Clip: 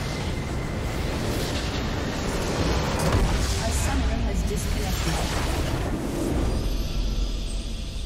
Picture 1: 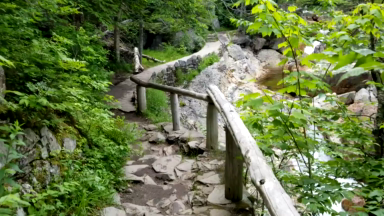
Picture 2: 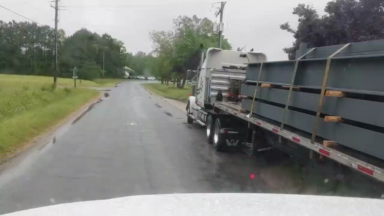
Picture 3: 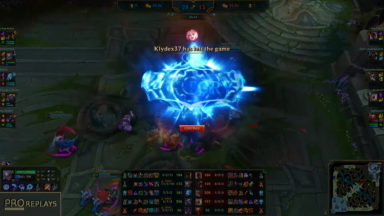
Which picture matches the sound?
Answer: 3